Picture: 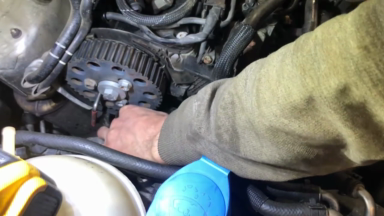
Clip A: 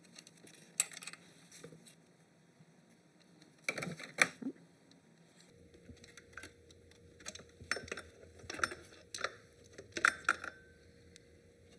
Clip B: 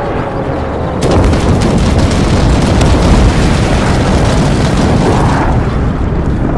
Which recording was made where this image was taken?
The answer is A